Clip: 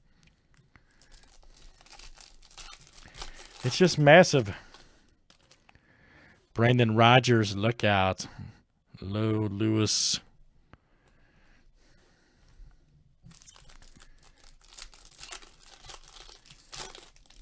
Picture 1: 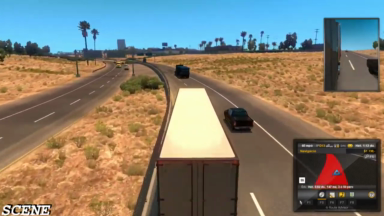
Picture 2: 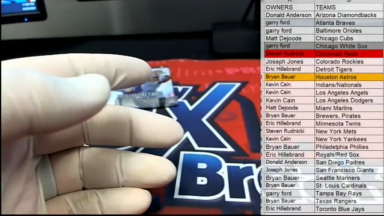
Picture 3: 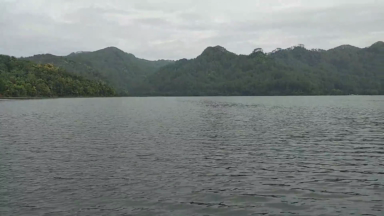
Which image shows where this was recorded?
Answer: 2